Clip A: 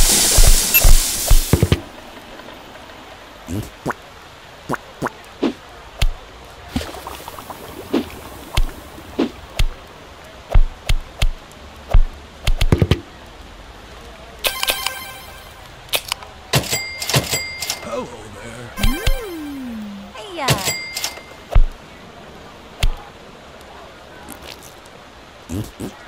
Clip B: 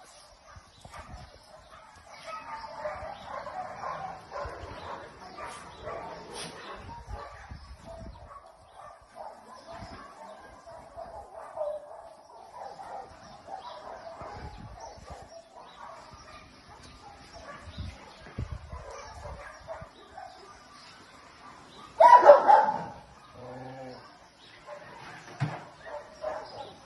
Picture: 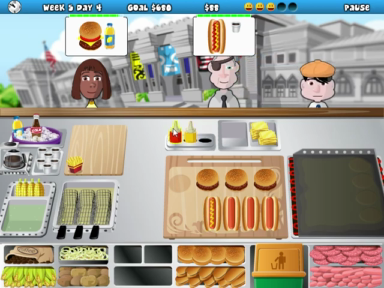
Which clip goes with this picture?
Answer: A